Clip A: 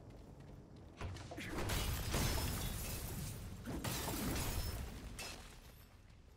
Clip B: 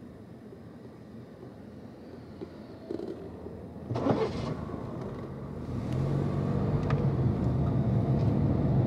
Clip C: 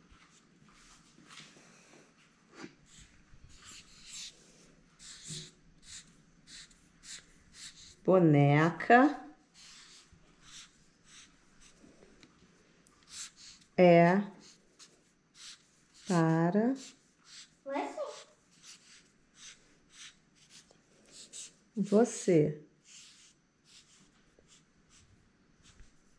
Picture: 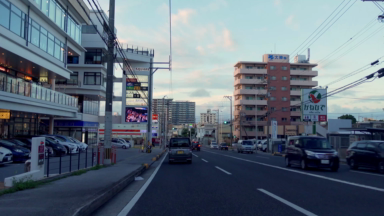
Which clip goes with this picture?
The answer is B